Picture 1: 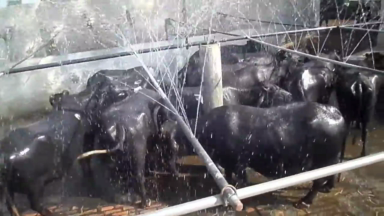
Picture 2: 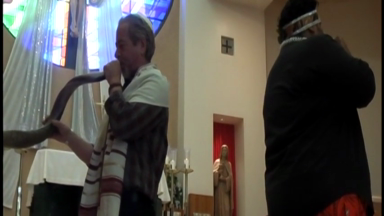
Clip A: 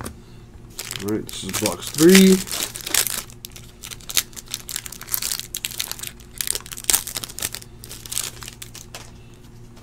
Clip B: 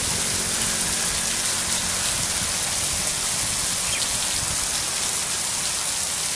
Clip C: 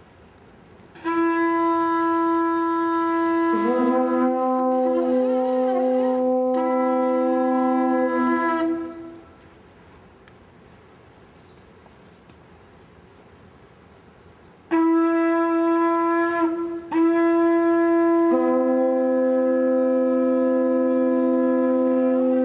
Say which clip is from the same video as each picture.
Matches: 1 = B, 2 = C